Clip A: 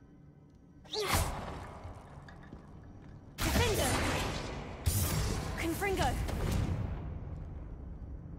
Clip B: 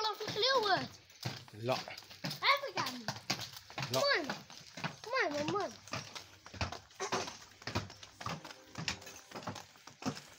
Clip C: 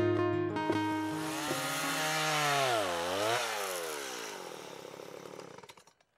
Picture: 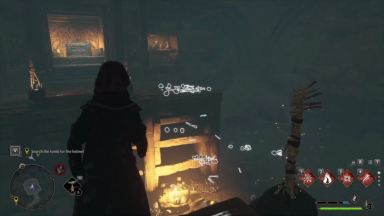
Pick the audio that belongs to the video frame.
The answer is A